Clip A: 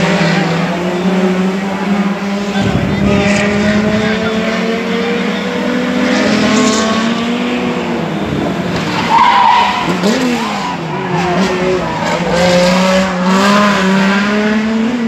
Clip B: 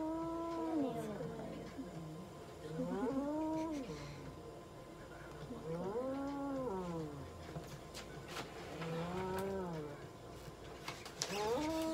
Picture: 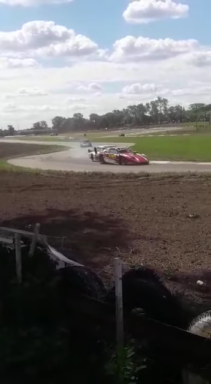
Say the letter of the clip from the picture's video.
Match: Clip A